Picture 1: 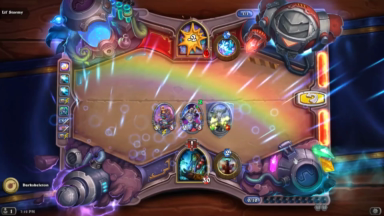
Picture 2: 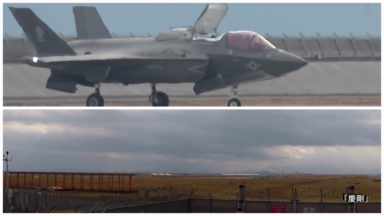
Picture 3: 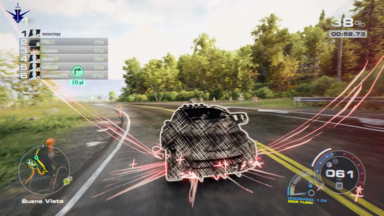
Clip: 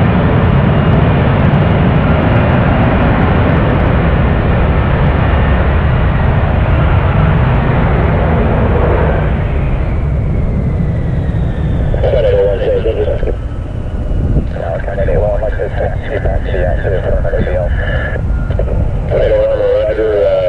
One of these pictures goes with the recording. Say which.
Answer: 2